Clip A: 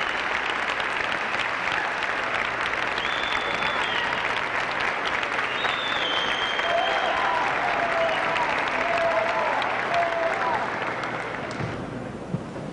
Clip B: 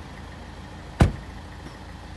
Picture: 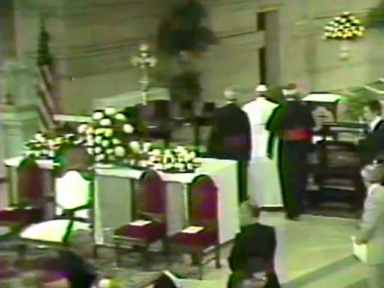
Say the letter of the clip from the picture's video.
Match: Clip A